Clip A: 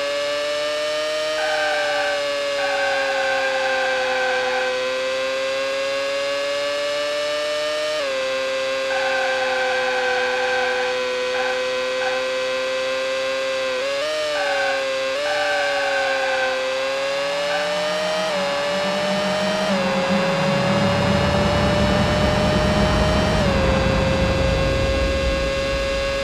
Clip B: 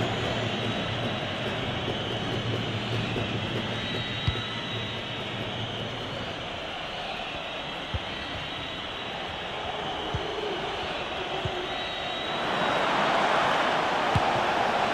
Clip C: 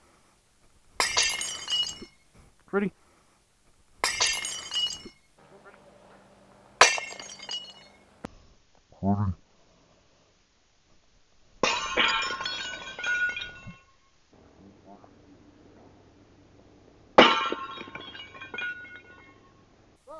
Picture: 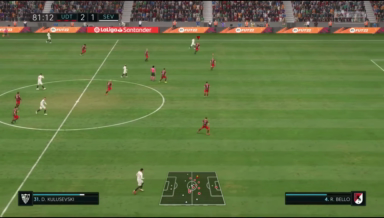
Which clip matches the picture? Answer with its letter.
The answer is B